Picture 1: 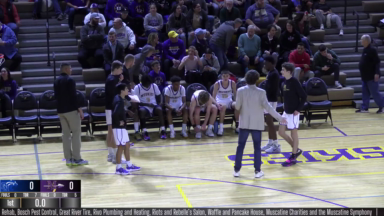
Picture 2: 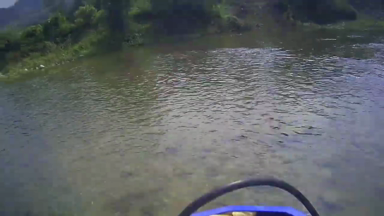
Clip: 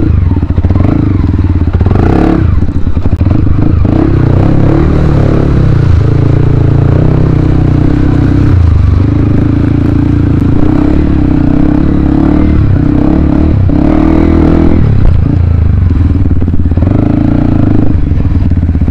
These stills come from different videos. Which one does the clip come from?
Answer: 2